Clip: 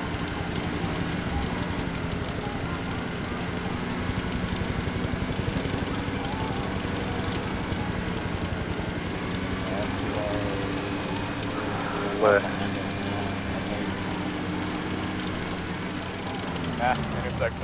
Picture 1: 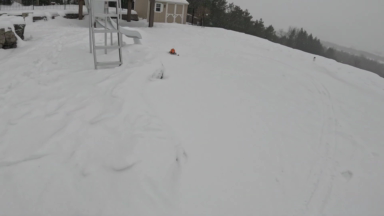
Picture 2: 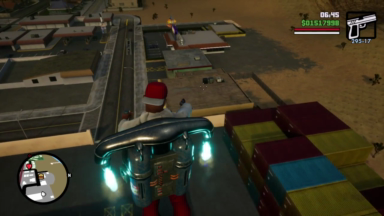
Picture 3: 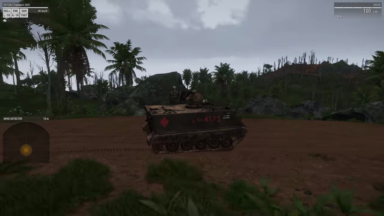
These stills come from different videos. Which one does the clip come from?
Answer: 3